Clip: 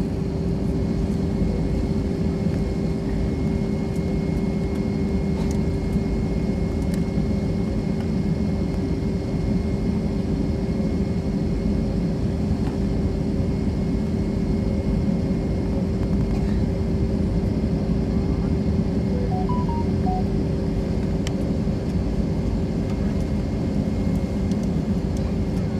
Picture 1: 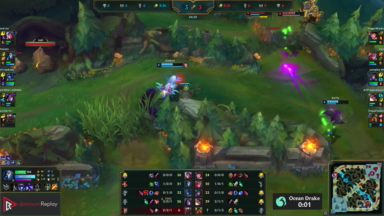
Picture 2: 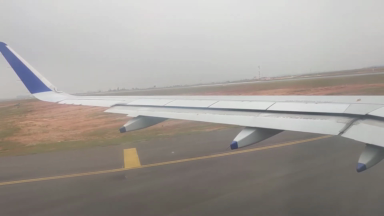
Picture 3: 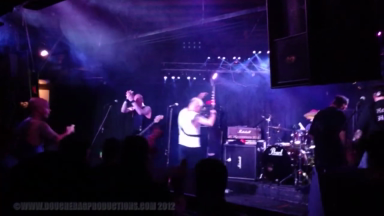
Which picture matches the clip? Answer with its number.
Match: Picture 2